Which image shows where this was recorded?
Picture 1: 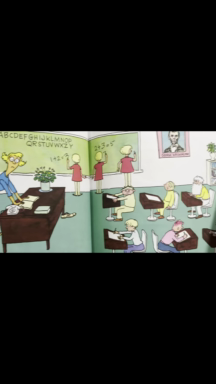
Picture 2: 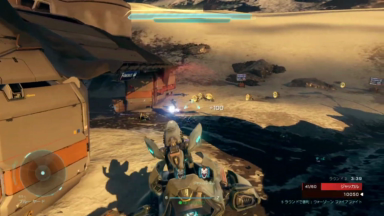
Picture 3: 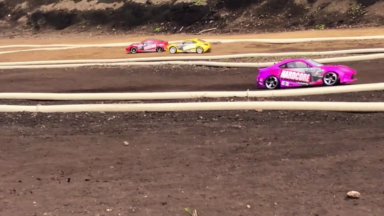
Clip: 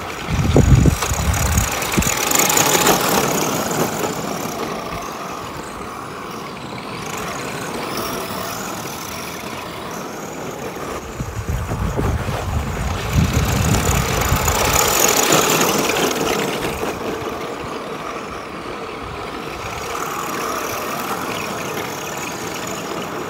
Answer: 3